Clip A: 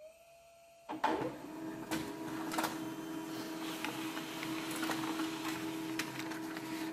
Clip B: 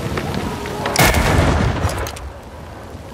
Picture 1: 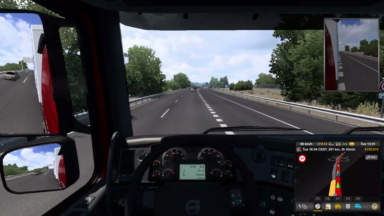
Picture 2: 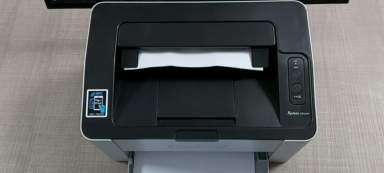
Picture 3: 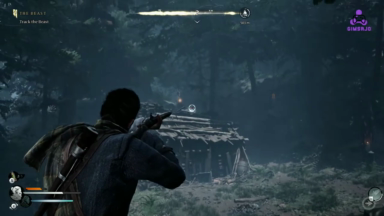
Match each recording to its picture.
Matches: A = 2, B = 3